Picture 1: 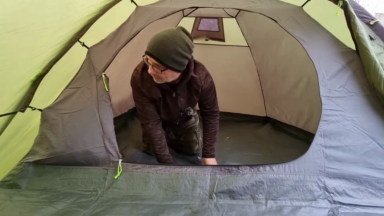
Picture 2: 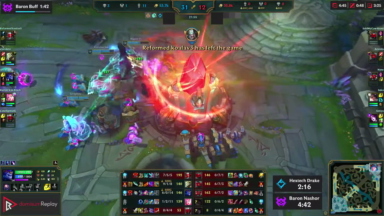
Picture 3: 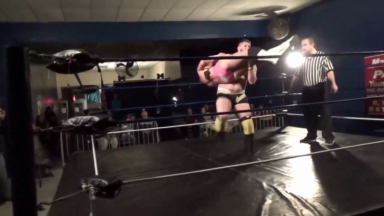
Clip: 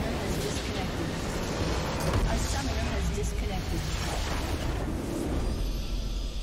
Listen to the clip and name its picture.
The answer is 2